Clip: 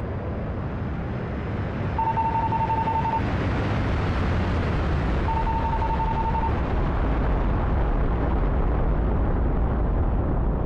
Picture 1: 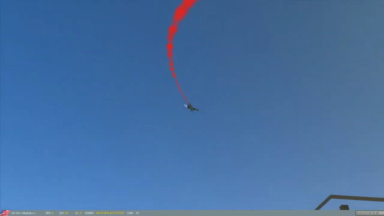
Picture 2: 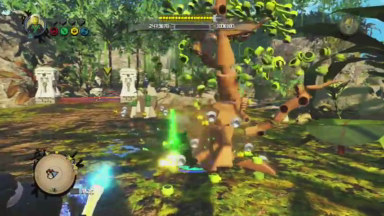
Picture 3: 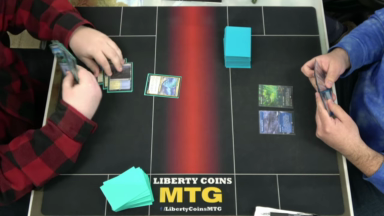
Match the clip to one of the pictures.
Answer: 1